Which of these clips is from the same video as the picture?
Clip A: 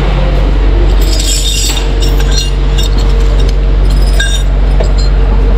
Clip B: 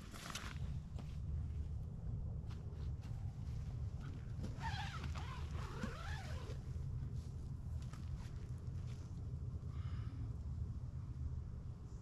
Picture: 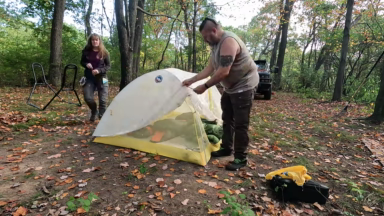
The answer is B